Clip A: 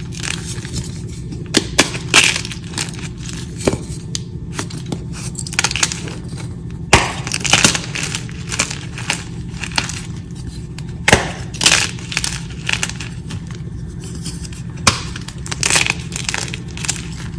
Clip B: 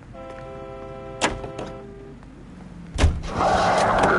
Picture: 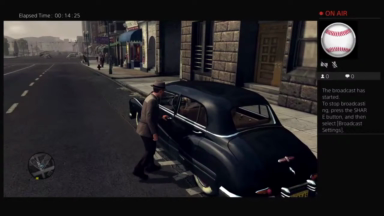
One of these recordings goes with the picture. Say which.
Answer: B